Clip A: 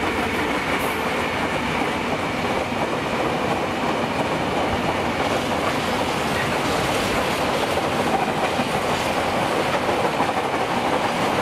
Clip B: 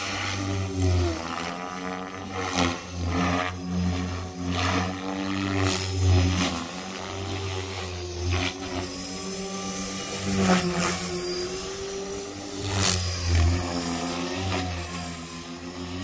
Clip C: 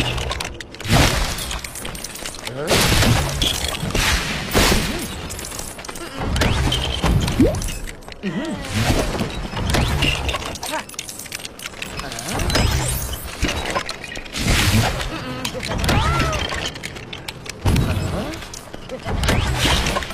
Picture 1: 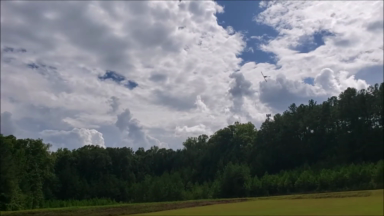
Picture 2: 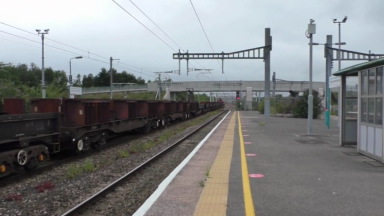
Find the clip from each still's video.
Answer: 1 B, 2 A